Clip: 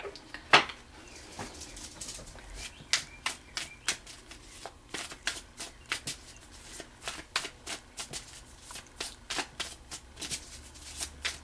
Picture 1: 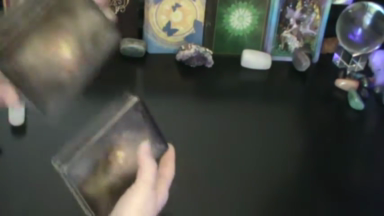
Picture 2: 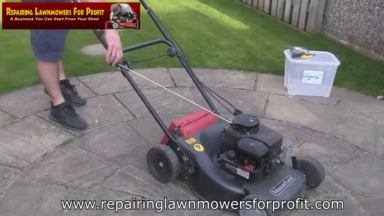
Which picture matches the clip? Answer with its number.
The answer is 1